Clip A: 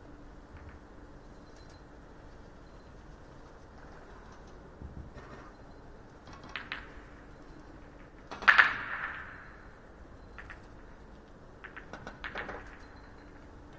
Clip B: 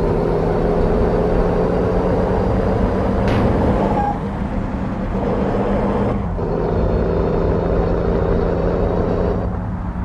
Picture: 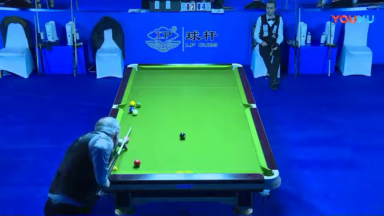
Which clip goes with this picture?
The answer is A